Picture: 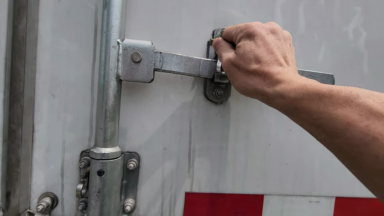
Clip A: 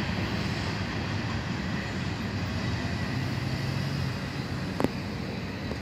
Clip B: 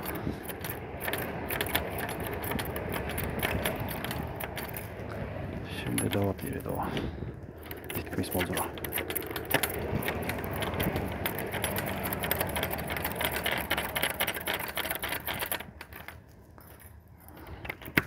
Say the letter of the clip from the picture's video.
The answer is B